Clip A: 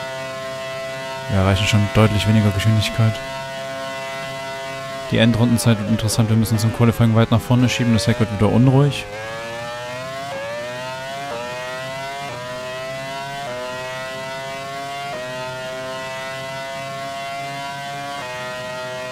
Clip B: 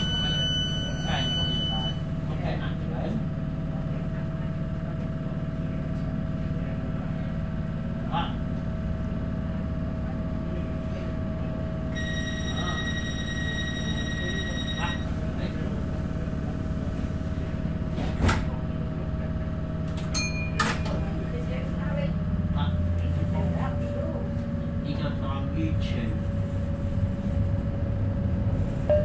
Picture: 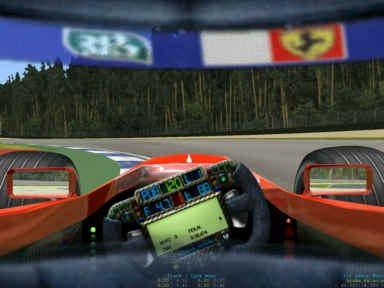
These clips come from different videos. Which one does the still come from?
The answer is A